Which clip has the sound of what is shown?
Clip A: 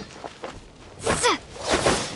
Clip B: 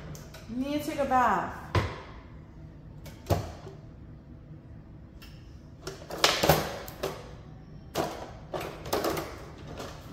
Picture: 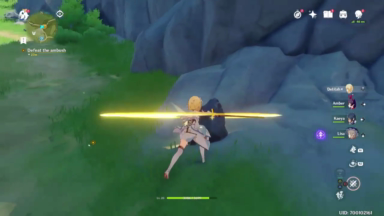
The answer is A